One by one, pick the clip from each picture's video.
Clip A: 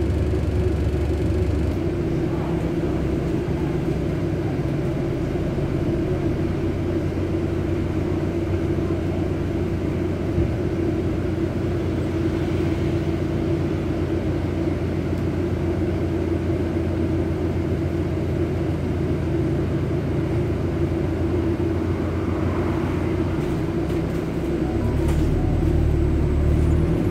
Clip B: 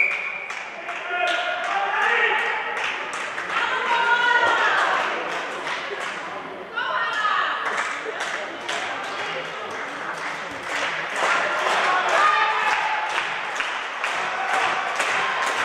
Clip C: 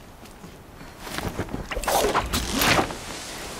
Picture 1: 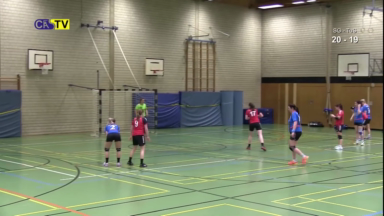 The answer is B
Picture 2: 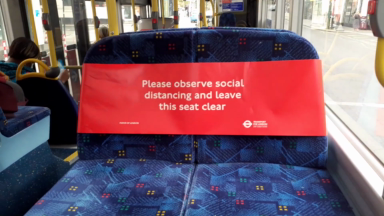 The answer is A